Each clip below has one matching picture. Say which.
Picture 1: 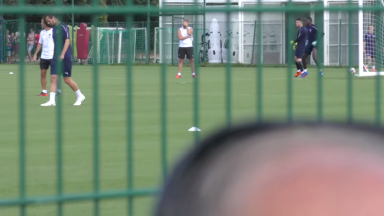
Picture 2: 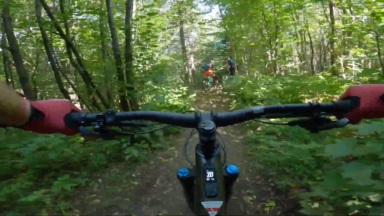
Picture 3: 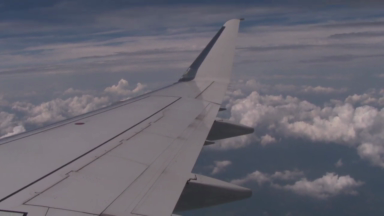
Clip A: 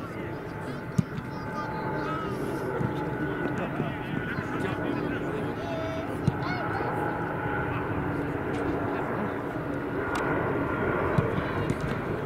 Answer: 1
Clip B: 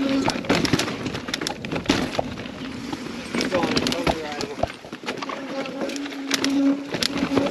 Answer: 2